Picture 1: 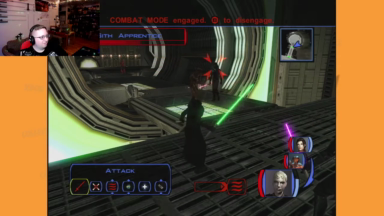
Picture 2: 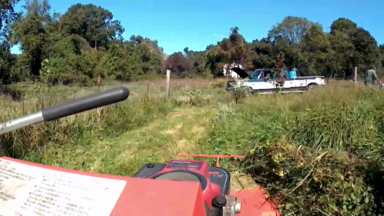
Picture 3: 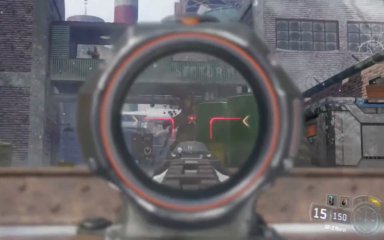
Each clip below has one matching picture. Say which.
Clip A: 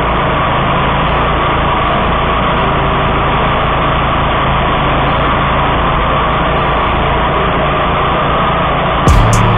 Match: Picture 2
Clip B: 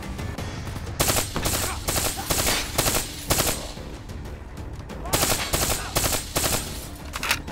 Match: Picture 3